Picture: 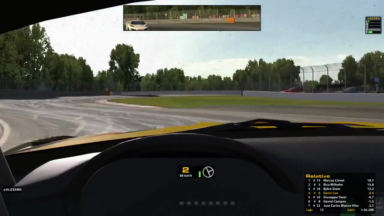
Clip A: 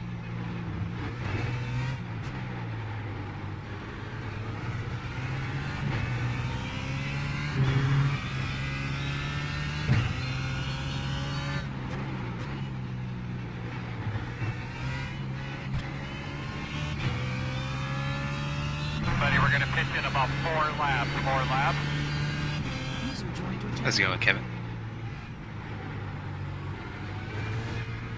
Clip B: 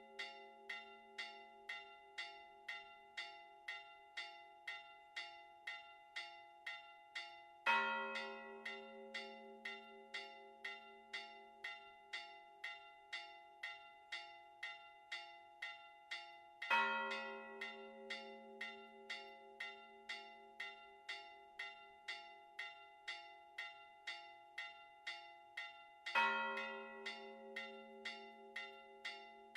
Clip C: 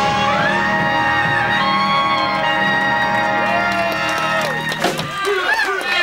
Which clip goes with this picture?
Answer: A